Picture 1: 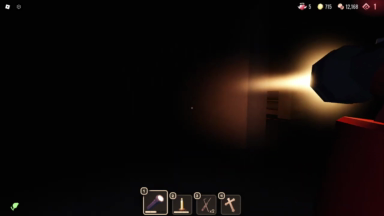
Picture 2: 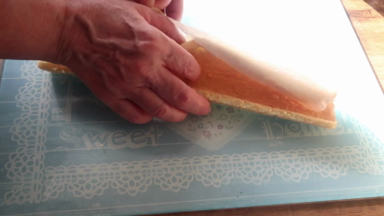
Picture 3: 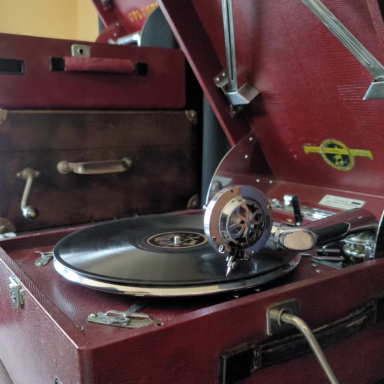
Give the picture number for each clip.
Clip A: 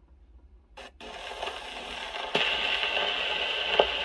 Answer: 3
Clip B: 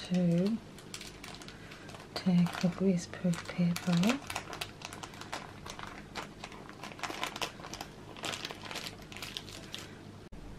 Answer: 2